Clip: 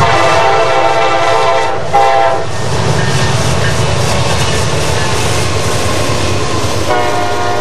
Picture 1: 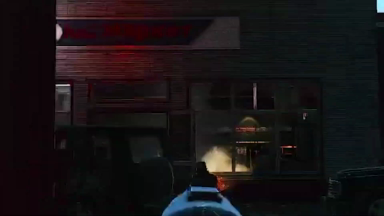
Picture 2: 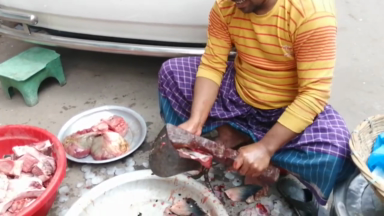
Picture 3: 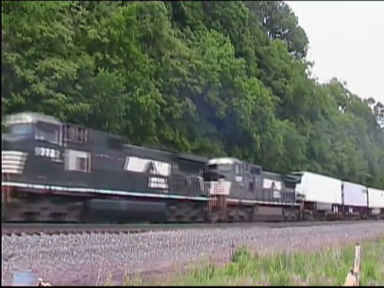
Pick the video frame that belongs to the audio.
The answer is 3